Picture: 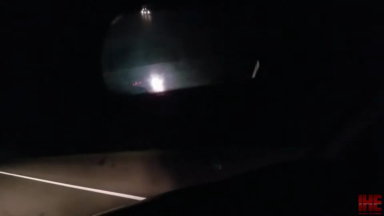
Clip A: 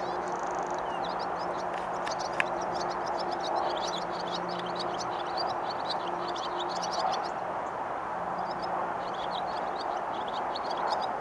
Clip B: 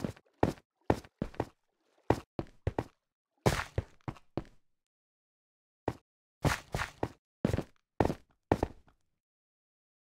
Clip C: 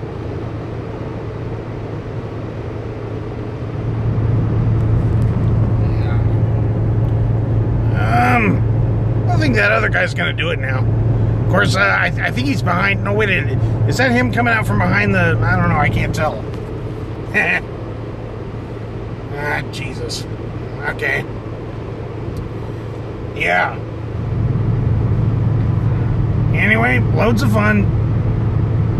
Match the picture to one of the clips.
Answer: C